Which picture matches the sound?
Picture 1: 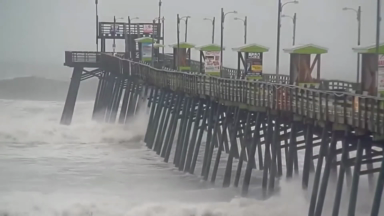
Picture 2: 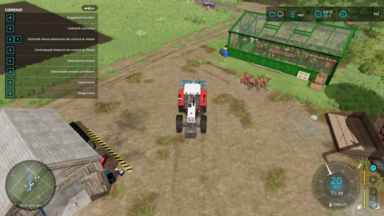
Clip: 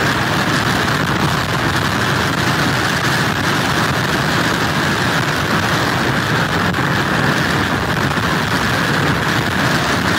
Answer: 1